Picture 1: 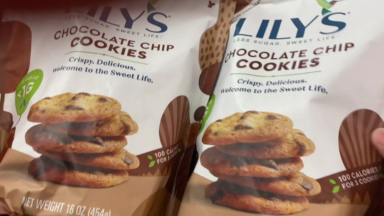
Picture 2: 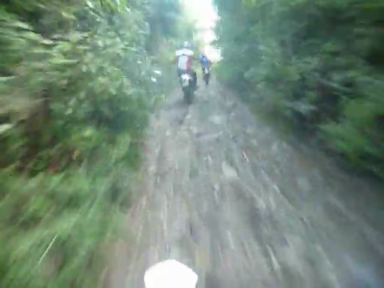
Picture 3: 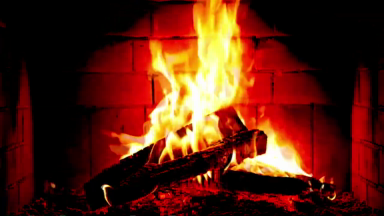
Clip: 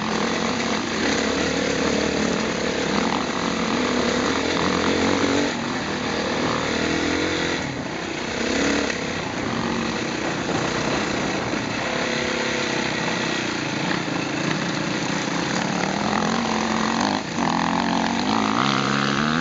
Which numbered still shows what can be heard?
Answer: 2